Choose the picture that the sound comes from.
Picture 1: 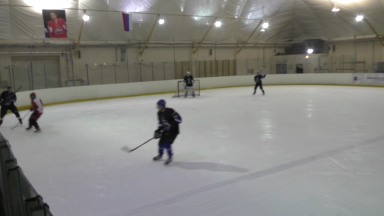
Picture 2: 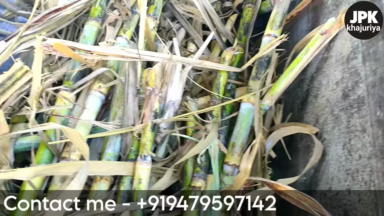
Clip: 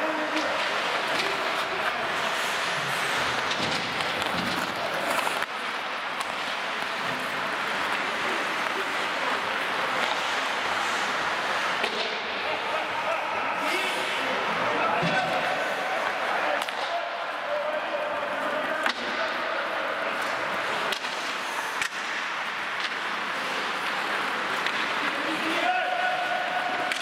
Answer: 1